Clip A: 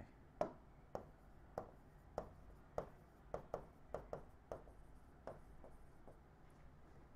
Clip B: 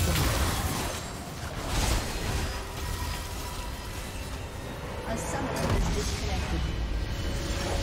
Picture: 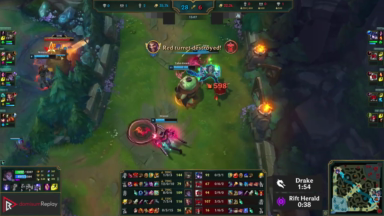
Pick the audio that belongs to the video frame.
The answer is B